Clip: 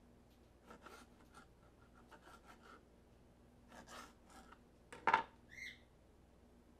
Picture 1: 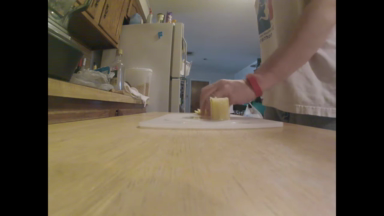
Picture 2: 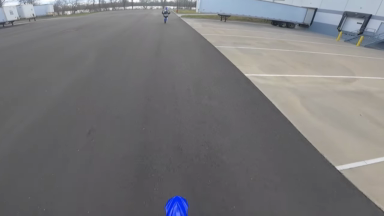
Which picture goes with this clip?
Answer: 1